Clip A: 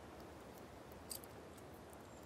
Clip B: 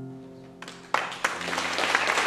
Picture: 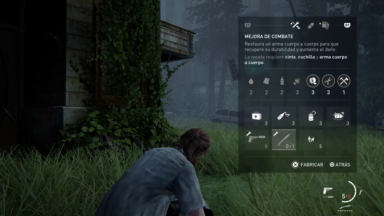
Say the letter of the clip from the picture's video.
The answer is A